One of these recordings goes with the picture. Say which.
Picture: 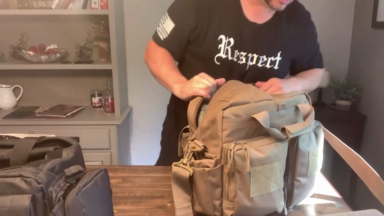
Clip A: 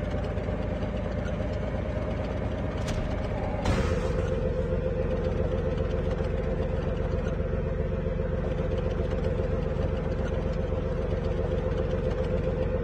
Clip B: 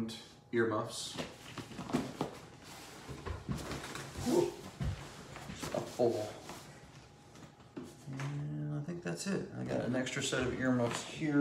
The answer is B